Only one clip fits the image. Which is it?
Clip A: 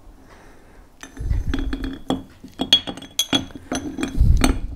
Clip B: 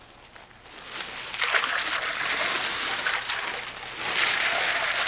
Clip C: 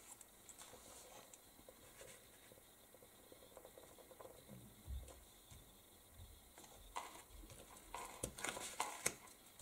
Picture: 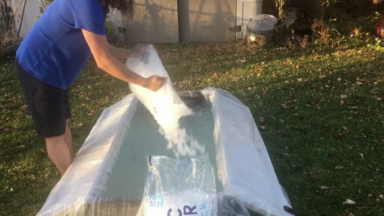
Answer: B